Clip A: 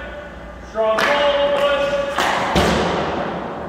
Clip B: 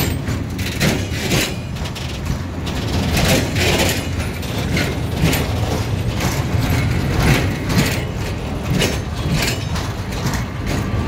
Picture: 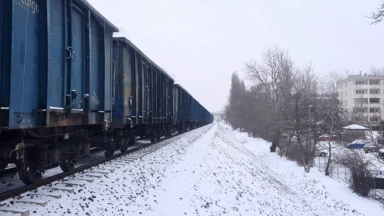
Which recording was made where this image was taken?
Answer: B